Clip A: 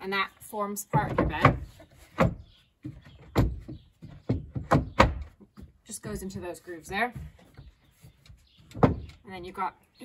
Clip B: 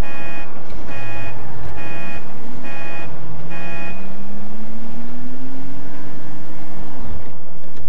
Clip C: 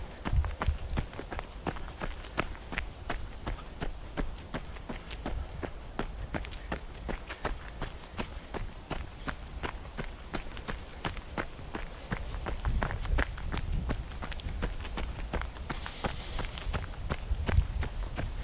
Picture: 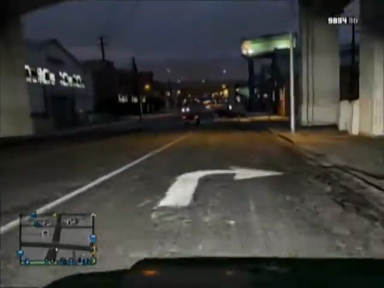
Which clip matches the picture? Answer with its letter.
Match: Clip B